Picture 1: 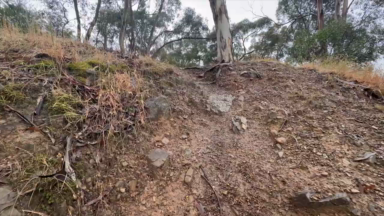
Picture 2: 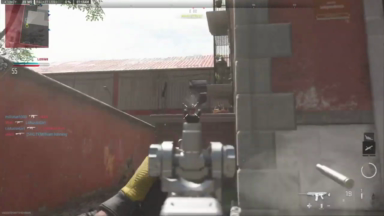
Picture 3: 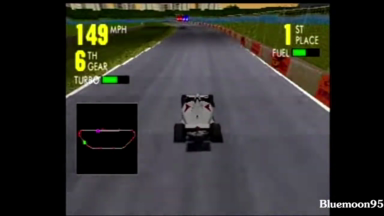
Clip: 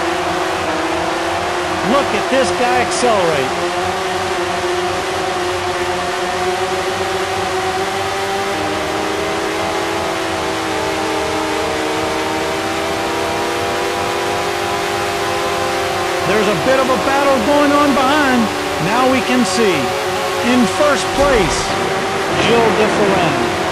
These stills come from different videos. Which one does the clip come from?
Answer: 3